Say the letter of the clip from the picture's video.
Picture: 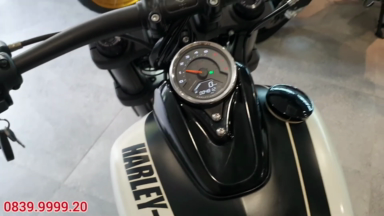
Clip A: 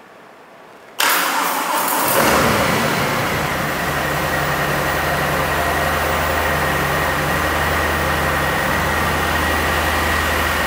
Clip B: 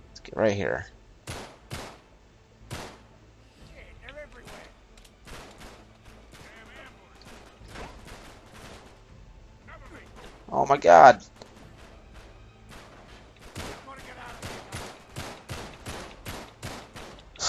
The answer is A